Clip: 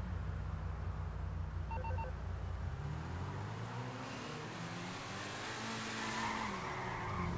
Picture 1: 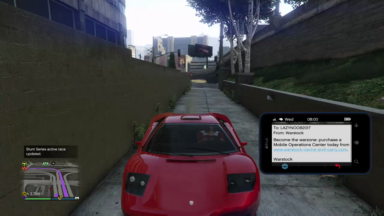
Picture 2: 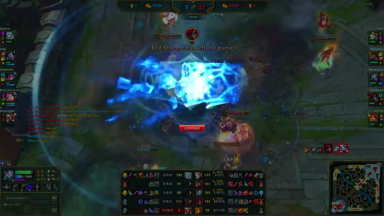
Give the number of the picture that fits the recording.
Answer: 1